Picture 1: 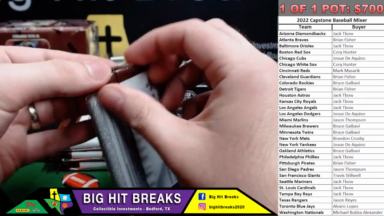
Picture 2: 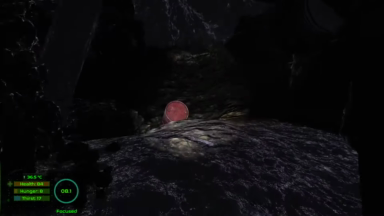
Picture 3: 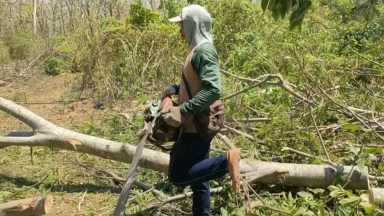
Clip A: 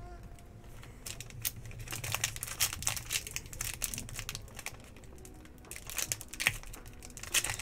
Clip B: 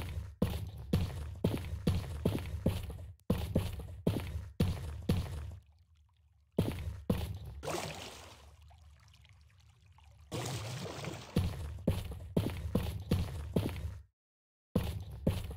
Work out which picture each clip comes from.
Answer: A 1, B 2